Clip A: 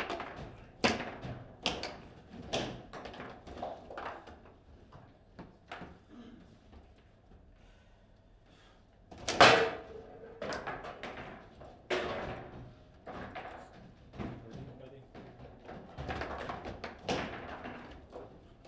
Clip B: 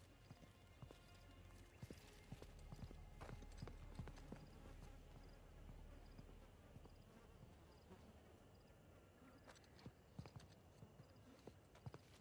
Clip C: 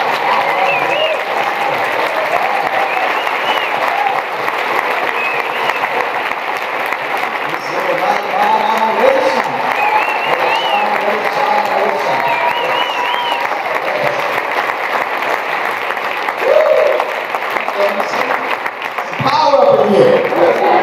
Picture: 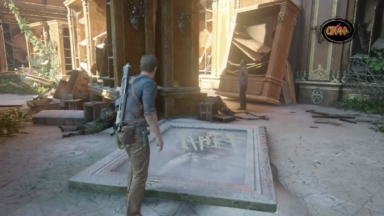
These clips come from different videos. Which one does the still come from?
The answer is B